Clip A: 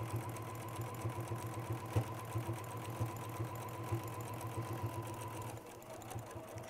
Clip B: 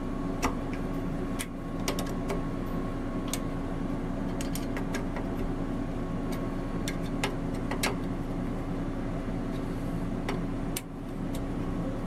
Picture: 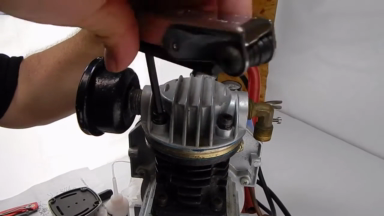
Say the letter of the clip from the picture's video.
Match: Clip B